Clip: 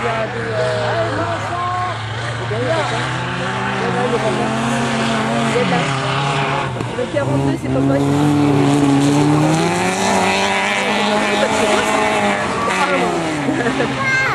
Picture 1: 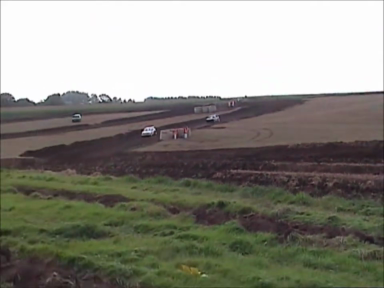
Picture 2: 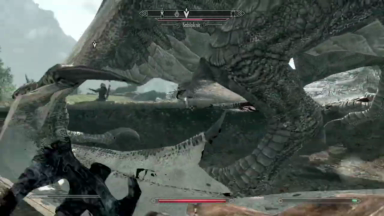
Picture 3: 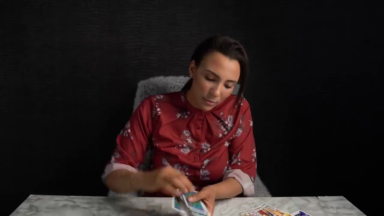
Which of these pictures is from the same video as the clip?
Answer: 1